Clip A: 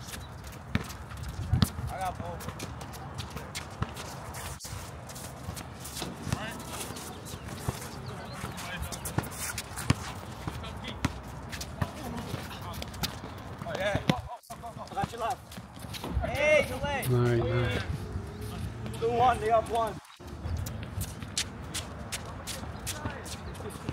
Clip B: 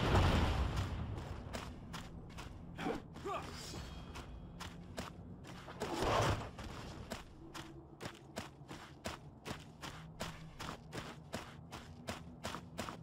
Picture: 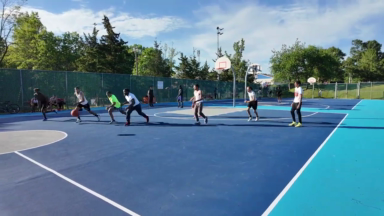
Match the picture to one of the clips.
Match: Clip A